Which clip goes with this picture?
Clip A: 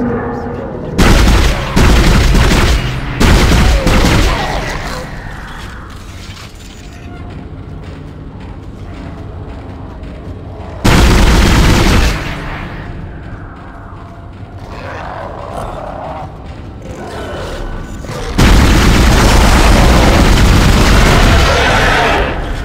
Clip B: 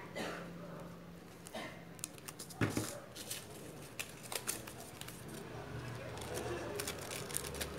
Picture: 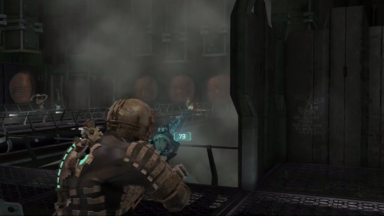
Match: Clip A